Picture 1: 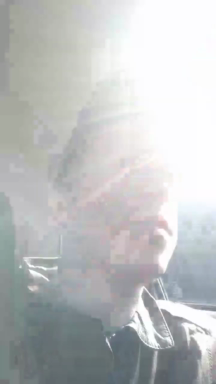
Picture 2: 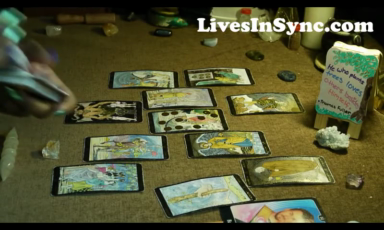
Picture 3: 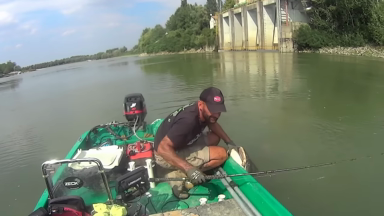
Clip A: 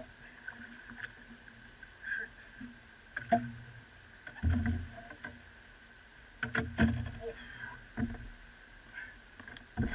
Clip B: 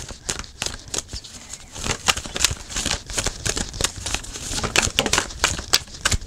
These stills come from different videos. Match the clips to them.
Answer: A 3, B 2